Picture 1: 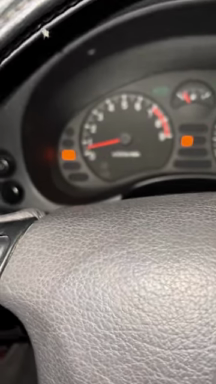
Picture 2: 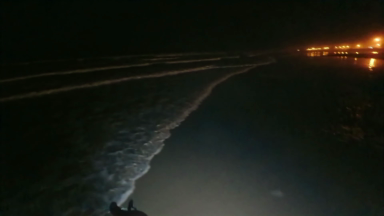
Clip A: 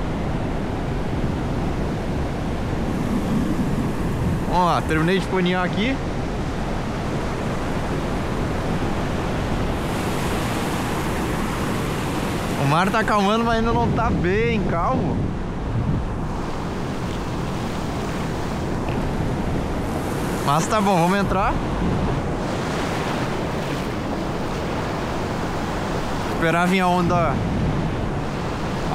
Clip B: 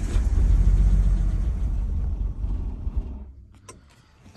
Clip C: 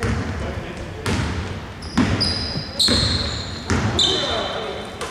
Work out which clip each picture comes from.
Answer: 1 B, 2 A